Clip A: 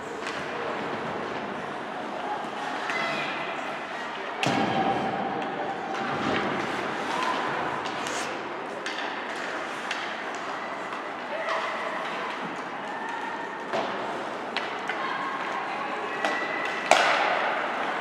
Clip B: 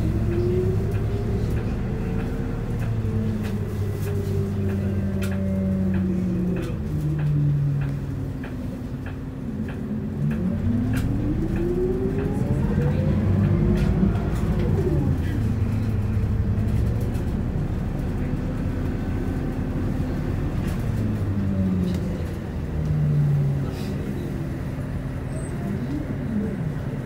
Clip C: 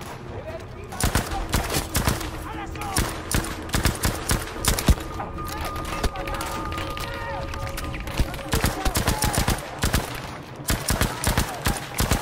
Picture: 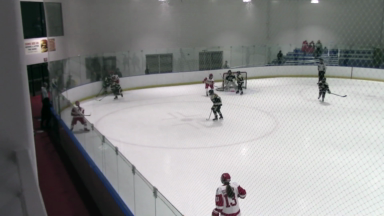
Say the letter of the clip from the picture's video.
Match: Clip A